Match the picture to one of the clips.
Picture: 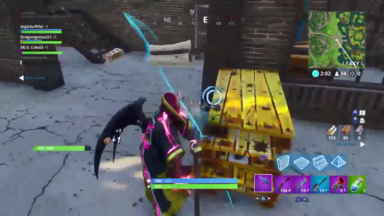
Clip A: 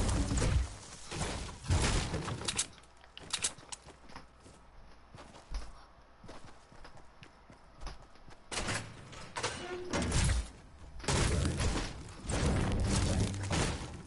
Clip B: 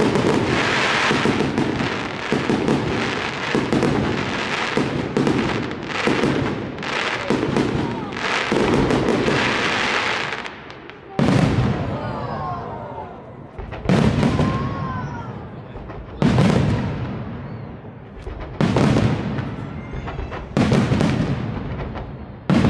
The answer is A